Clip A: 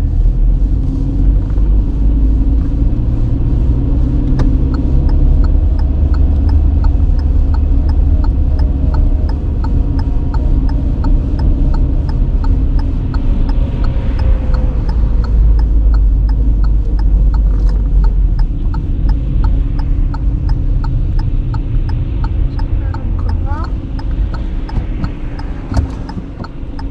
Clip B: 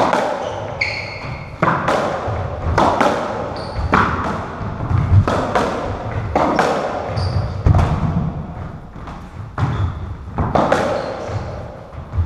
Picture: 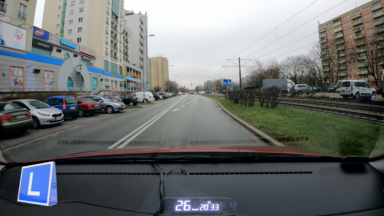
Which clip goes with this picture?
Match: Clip A